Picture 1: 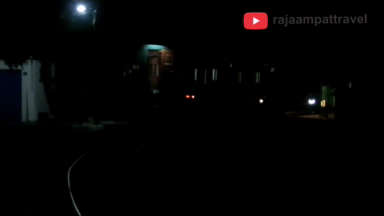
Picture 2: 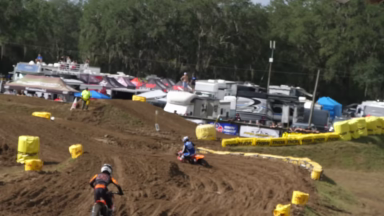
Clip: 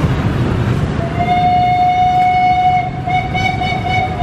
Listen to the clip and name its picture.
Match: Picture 1